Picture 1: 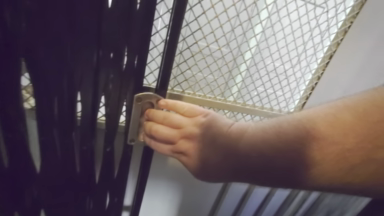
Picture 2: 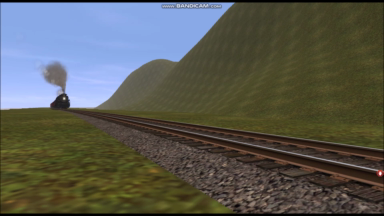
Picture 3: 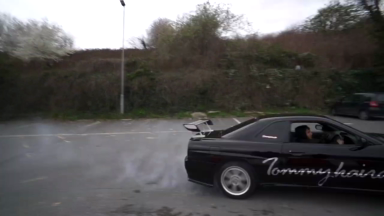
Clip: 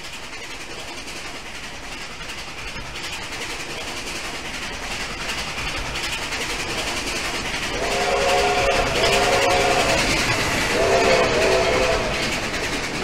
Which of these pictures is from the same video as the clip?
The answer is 2